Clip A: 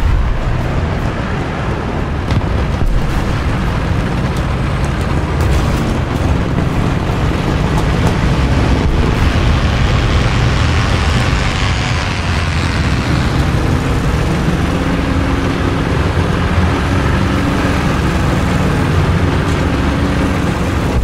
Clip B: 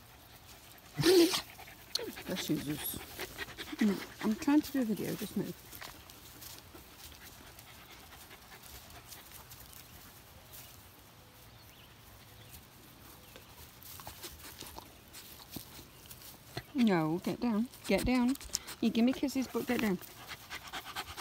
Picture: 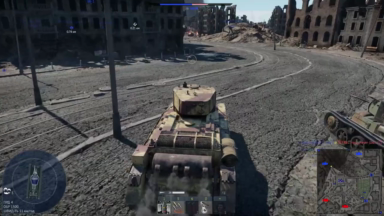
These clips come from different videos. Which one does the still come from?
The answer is A